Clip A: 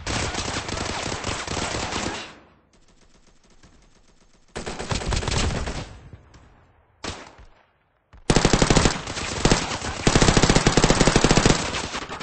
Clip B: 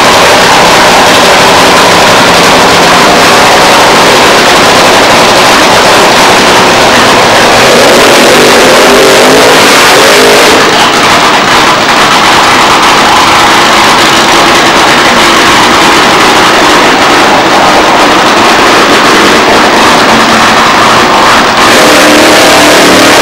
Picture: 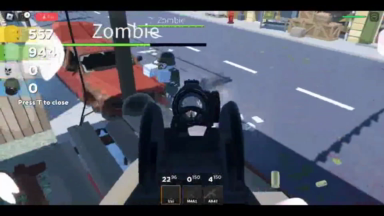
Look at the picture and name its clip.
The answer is A